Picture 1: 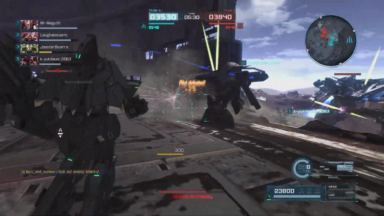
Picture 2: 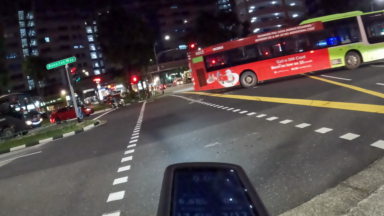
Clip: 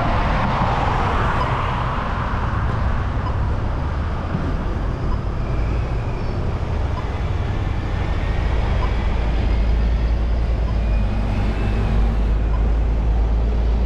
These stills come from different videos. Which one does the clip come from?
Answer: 2